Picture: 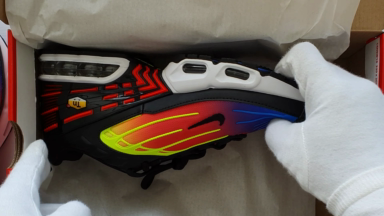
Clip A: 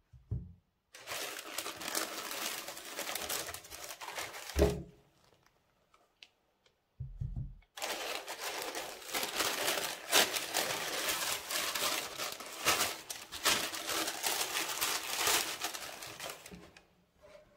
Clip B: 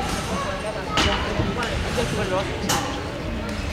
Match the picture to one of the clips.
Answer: A